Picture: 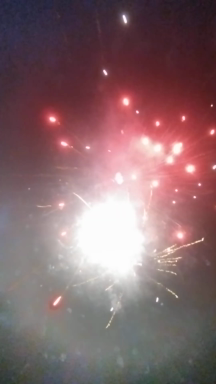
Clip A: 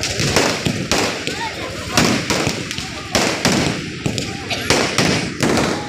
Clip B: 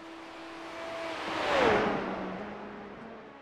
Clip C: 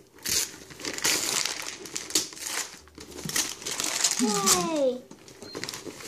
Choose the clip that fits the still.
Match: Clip A